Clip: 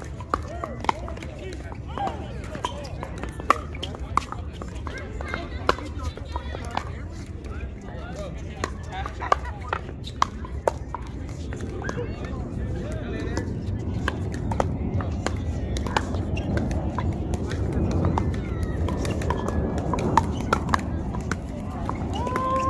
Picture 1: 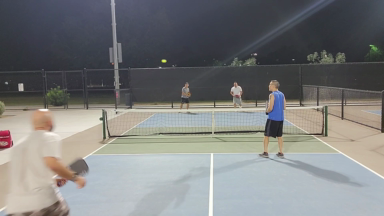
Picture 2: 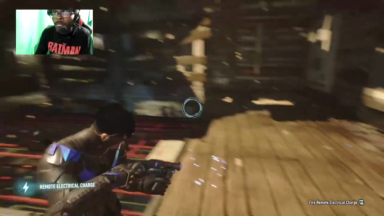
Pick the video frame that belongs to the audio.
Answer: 1